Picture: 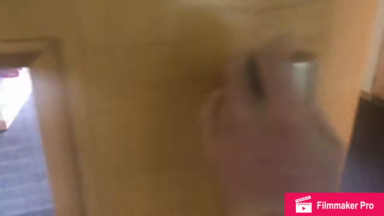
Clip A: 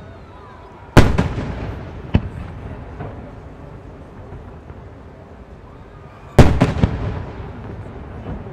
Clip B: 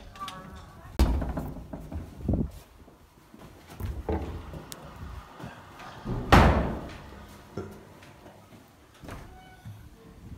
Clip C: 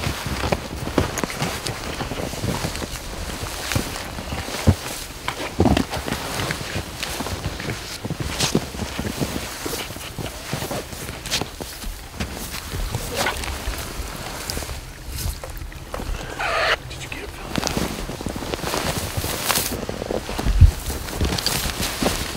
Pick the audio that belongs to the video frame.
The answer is B